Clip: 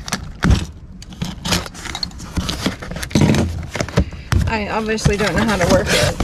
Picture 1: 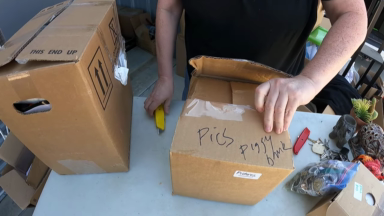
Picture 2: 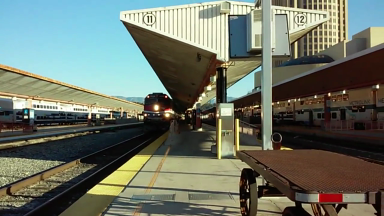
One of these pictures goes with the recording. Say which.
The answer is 1